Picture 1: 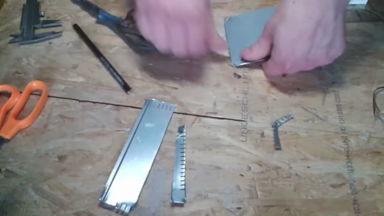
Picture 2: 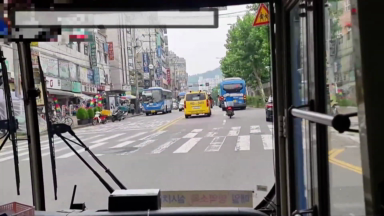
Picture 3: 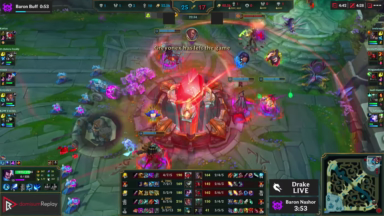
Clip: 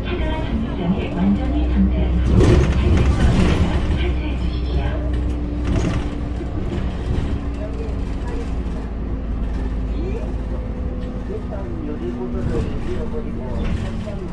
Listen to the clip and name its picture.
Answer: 2